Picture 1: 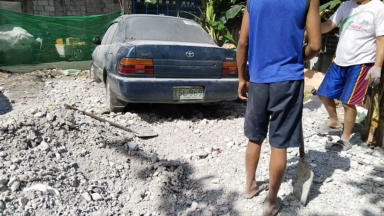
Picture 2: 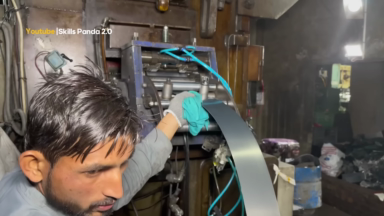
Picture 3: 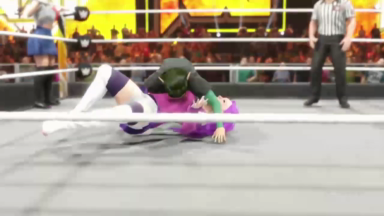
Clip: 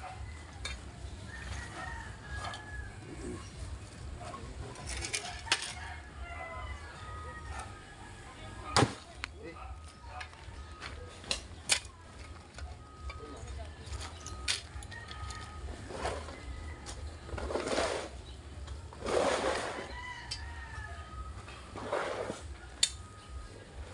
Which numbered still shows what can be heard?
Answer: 1